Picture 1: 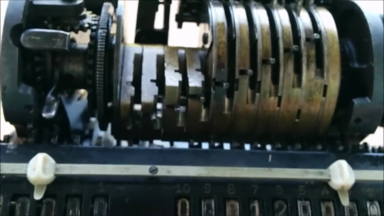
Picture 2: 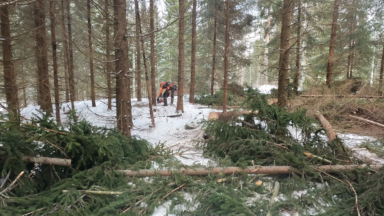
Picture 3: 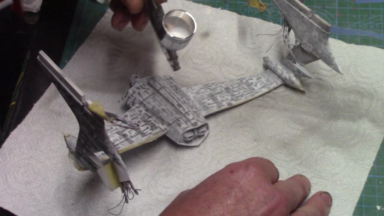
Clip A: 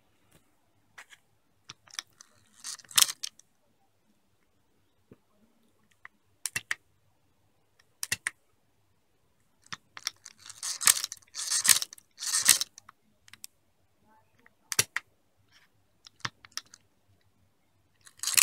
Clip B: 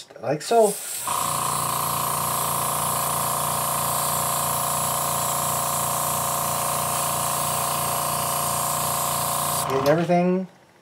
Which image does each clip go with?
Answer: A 1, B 3